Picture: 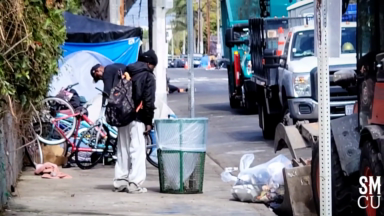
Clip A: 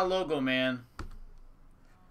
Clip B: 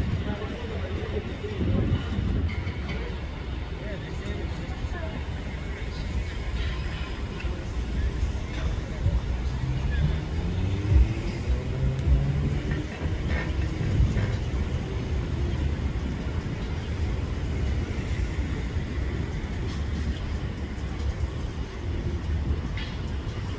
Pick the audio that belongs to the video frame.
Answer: B